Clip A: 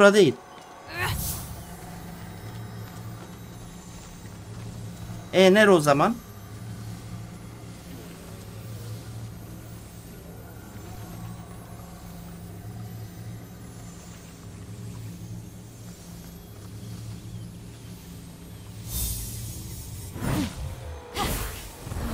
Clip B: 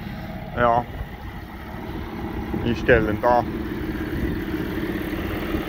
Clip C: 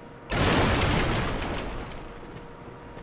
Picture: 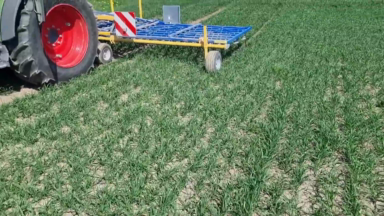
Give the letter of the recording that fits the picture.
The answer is B